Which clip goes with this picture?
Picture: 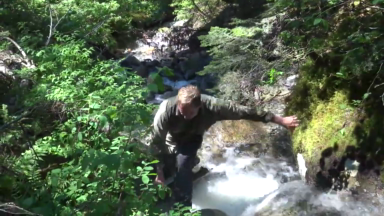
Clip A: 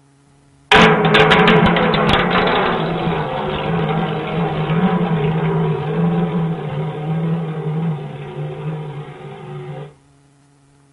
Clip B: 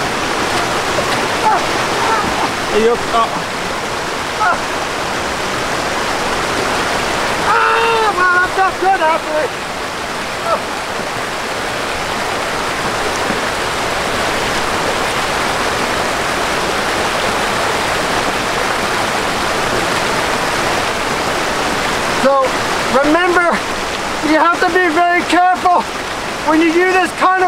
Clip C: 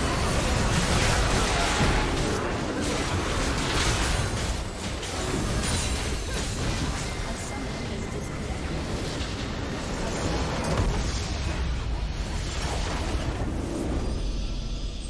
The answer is B